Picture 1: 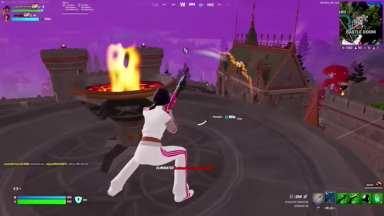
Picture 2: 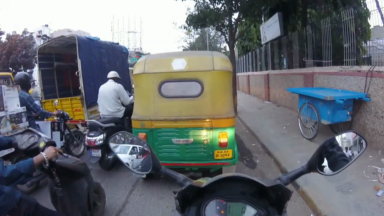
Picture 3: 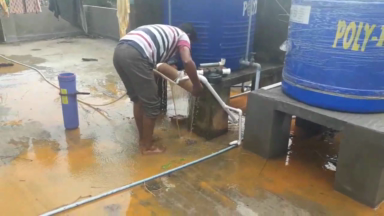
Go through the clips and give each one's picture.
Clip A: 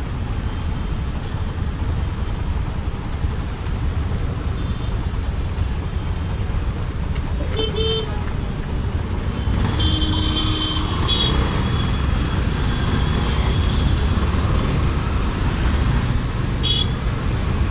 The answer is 2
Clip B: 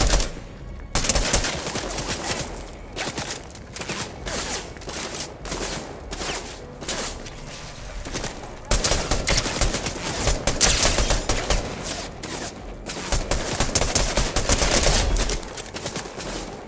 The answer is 1